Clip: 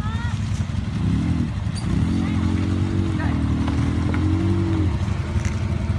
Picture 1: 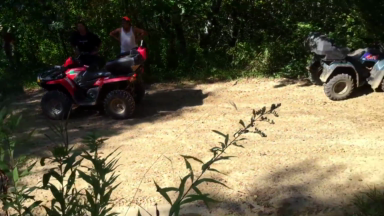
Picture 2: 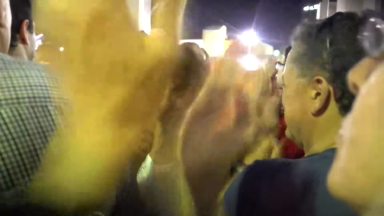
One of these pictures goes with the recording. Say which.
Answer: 1